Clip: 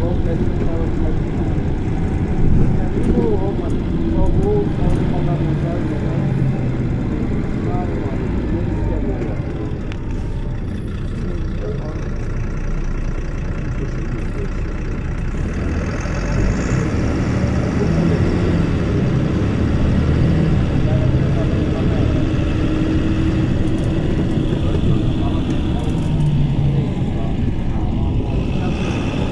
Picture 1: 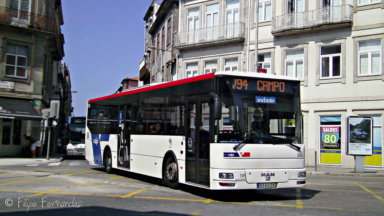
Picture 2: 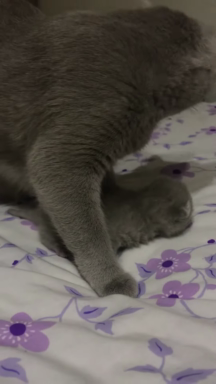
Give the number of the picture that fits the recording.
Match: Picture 1